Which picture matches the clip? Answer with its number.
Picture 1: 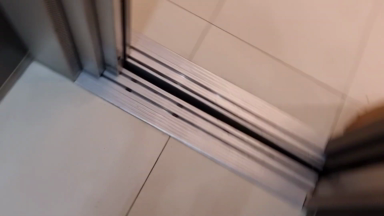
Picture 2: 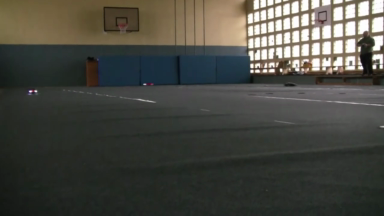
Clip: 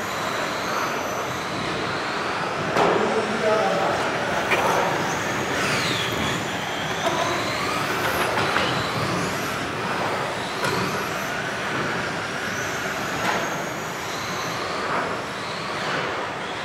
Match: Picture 2